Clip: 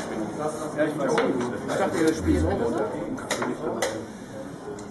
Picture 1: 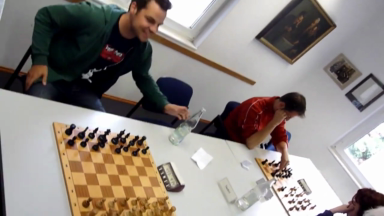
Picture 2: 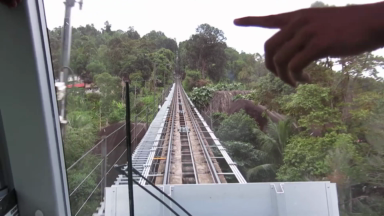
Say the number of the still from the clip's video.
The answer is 1